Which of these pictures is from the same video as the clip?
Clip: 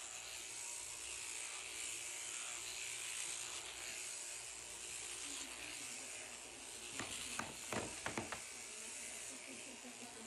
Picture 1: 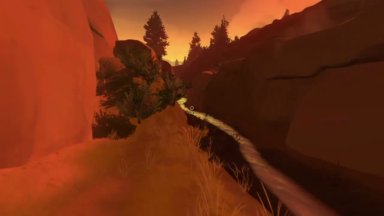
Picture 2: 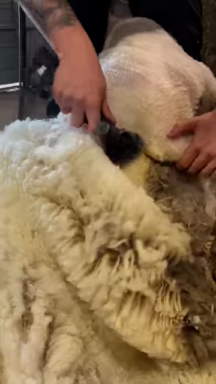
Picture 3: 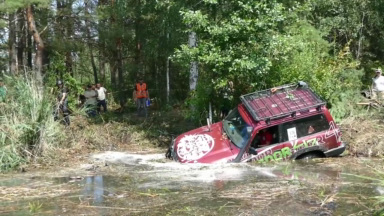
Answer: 2